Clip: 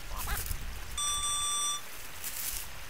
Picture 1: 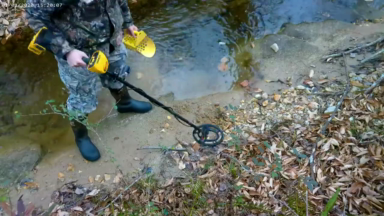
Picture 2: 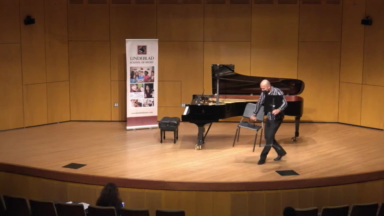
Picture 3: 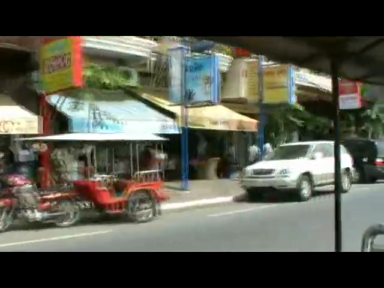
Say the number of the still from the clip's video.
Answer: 1